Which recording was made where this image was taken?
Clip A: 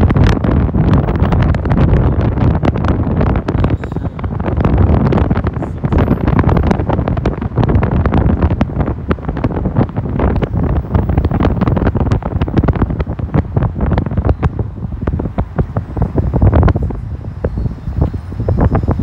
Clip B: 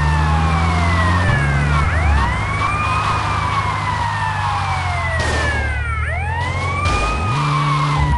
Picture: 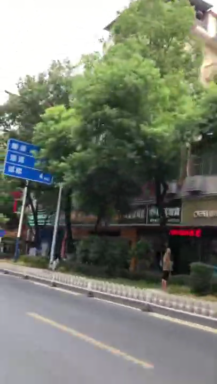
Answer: A